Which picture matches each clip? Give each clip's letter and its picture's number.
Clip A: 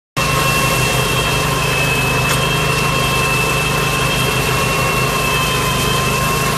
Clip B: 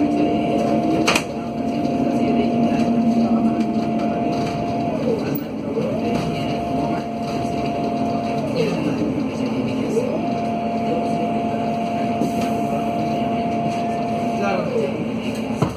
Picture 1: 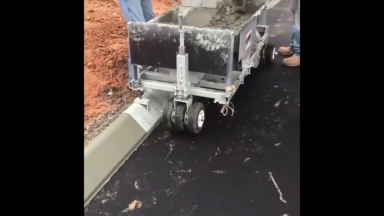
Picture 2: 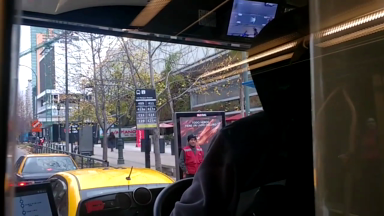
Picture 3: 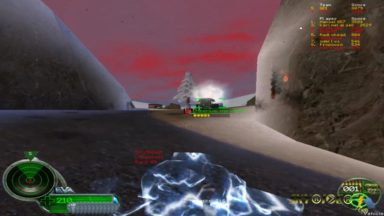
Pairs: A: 1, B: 2